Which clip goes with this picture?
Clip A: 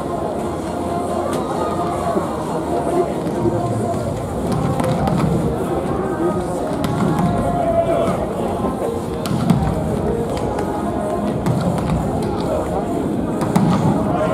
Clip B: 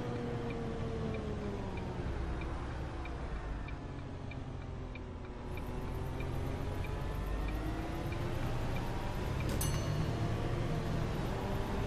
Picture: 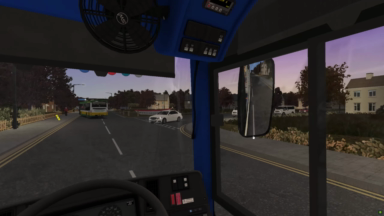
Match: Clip B